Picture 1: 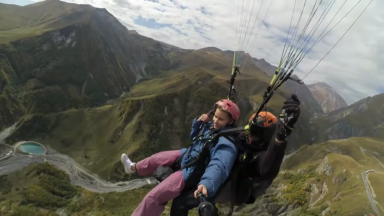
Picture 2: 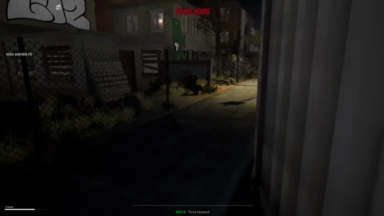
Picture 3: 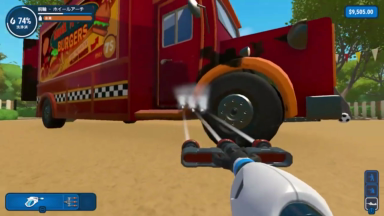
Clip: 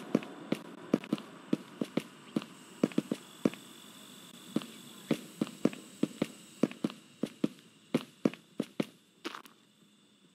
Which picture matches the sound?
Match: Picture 2